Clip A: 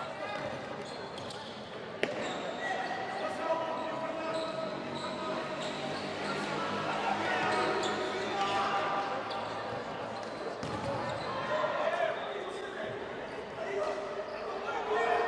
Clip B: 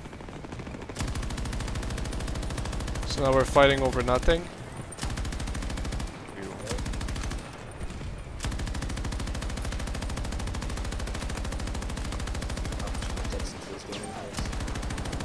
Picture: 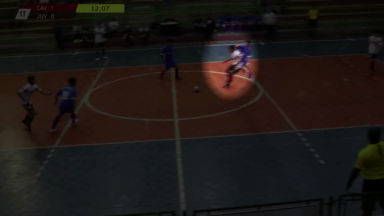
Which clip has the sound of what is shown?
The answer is A